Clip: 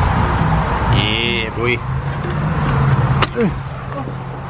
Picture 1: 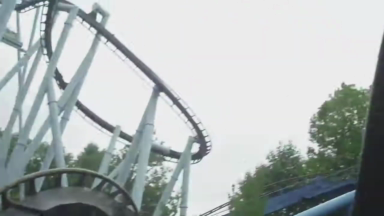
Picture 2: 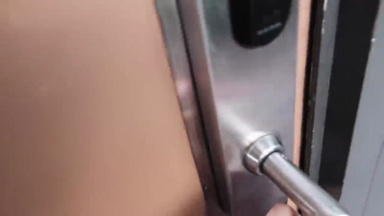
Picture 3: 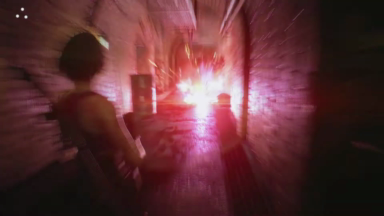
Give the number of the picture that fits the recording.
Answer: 2